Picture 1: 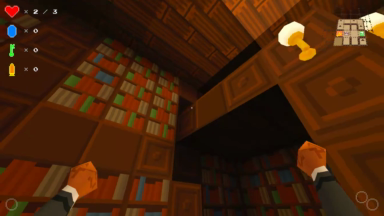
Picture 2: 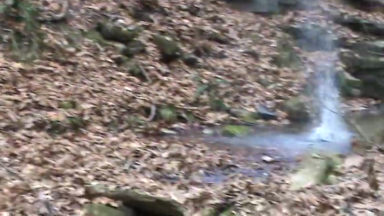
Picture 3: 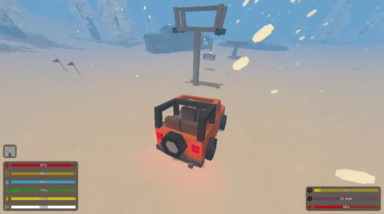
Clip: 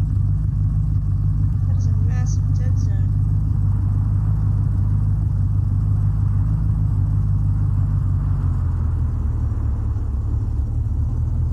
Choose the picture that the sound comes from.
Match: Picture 3